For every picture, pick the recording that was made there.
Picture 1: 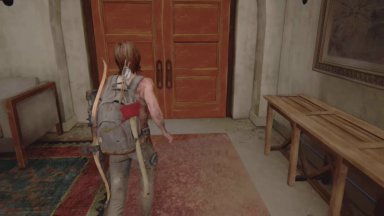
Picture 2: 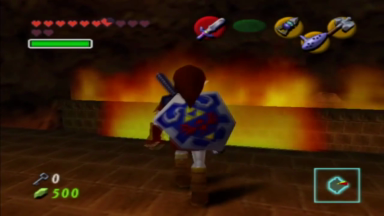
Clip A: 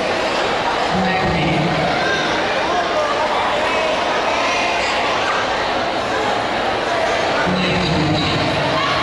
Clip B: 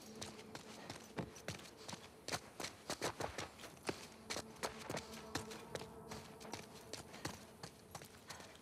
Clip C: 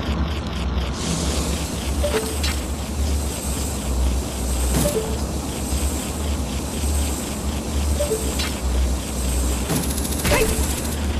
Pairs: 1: B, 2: C